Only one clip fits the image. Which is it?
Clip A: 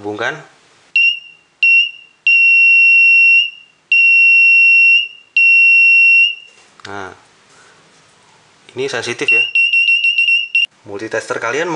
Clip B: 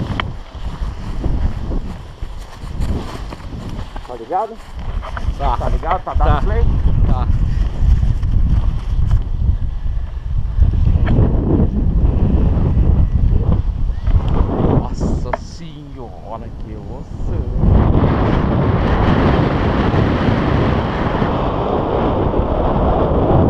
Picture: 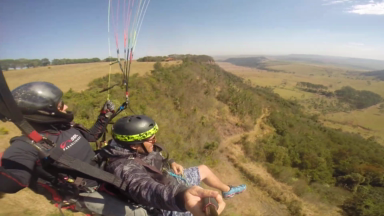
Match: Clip B